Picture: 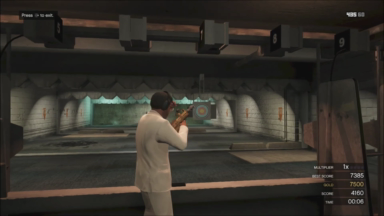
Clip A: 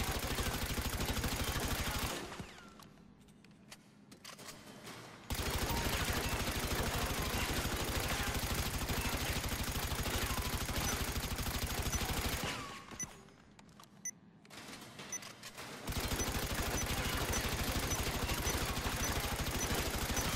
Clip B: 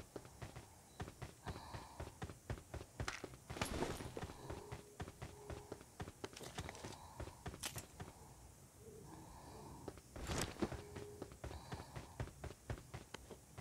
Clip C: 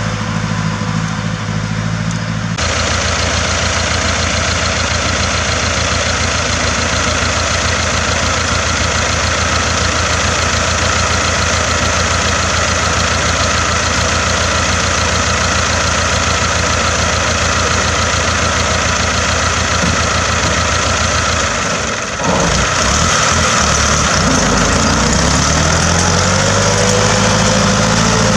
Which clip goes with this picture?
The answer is A